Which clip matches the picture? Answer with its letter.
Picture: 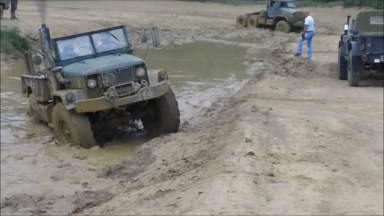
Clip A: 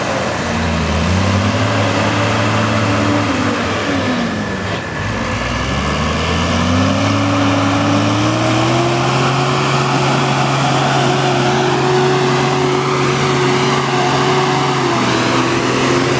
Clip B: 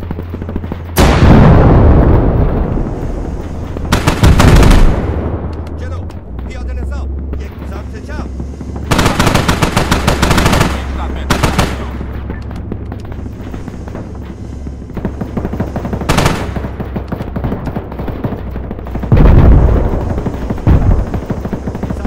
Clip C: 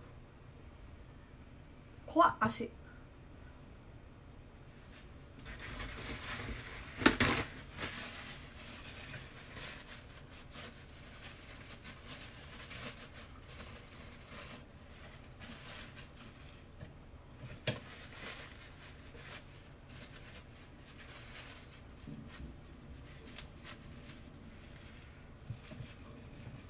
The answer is A